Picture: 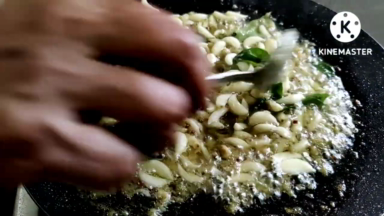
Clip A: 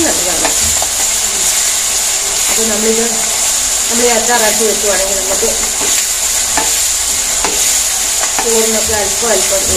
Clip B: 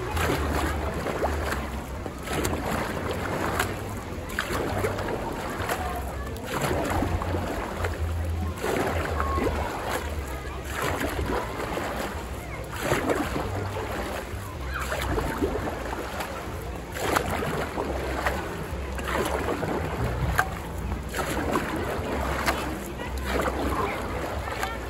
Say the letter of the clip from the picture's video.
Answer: A